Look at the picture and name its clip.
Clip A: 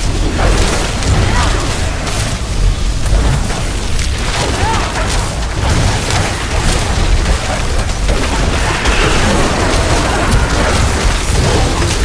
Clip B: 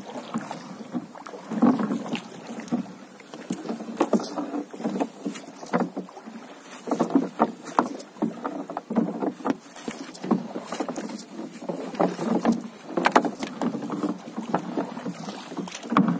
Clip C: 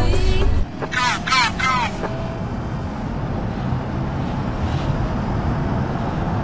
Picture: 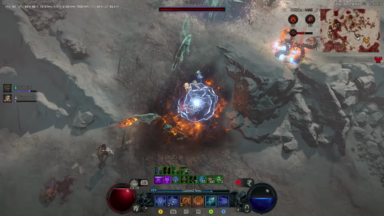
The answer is A